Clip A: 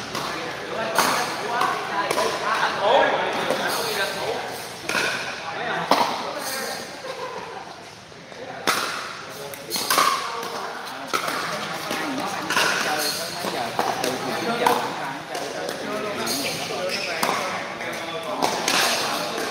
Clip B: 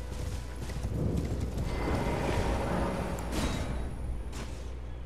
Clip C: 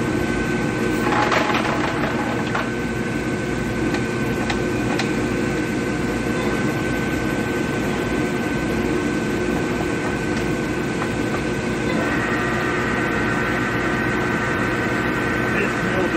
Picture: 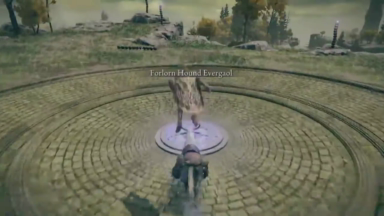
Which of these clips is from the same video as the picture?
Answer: B